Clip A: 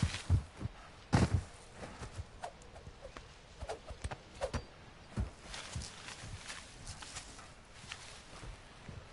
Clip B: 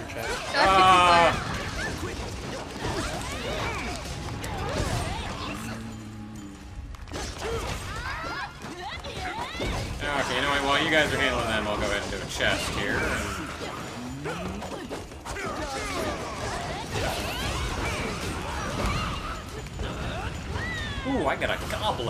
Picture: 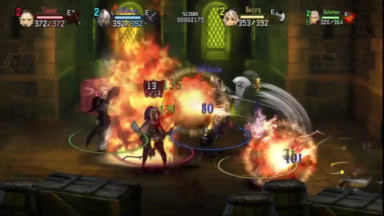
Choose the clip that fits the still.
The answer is B